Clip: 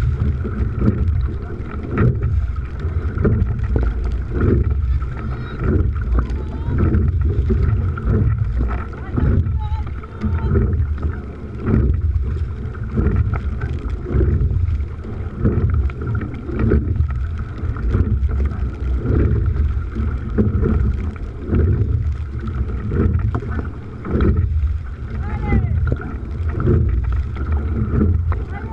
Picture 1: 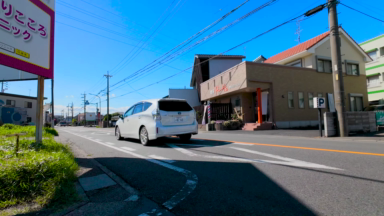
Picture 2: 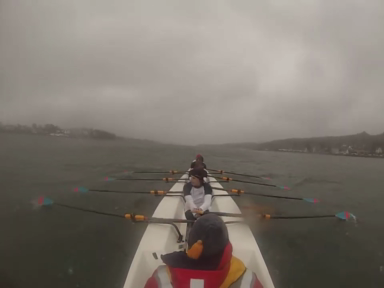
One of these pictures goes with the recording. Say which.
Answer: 2